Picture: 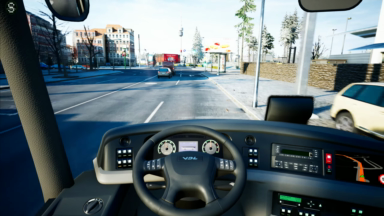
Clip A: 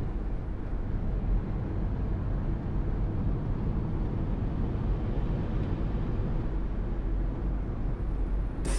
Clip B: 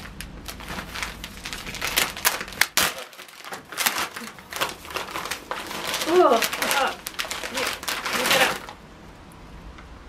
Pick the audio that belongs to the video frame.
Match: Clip A